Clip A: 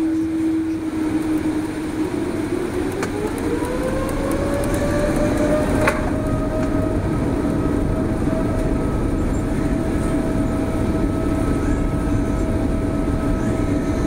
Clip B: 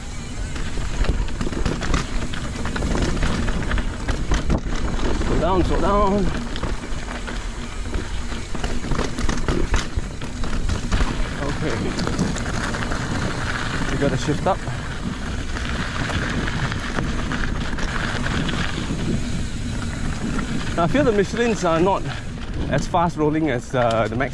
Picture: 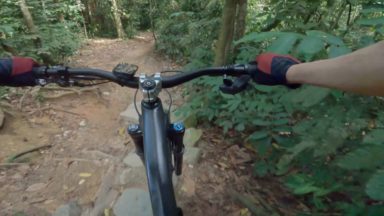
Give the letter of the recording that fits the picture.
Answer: B